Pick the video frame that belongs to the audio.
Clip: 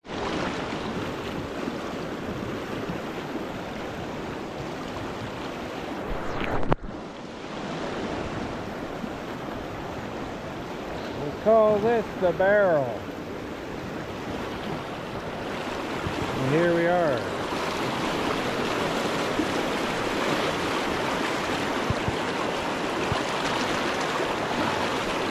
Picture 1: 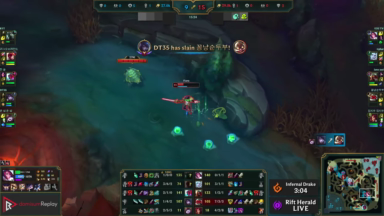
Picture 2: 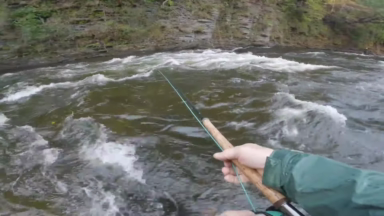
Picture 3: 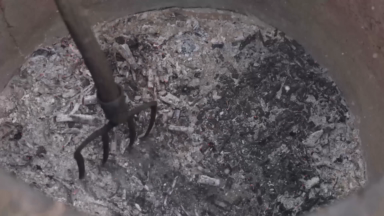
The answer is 2